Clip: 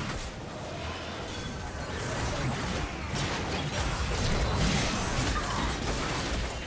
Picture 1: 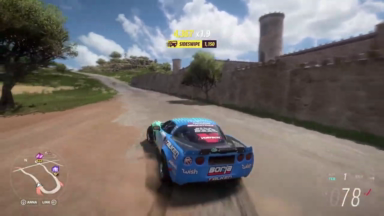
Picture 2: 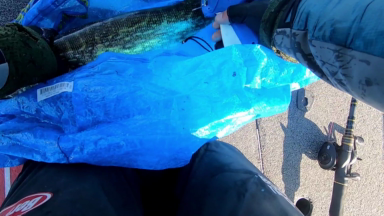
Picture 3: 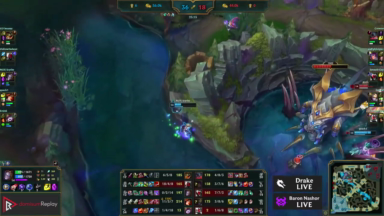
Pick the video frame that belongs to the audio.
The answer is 3